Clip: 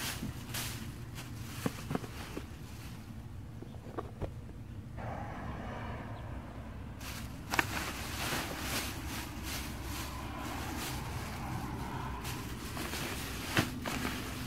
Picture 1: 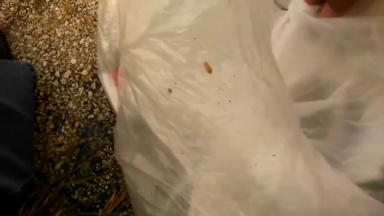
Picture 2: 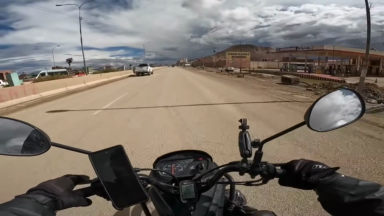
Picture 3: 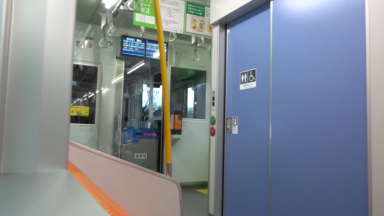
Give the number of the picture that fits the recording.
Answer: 1